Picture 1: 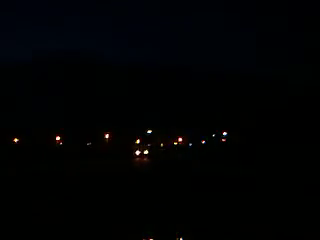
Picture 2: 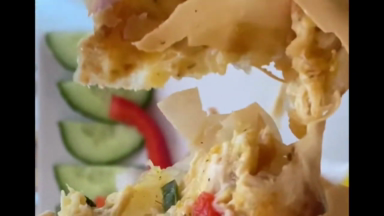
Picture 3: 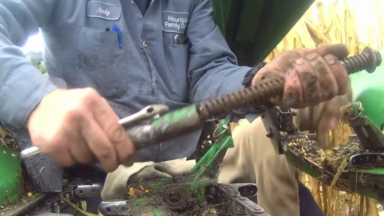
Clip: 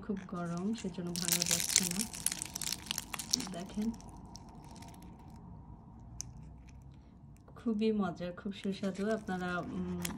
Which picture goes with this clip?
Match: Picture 2